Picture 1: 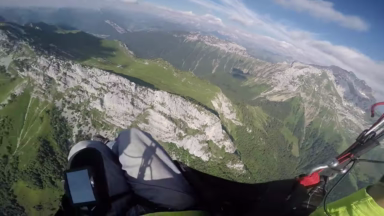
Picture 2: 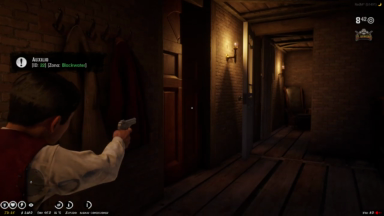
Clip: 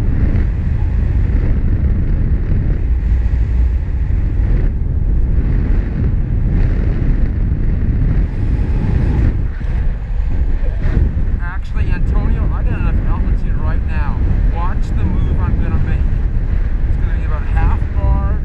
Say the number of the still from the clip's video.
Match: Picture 1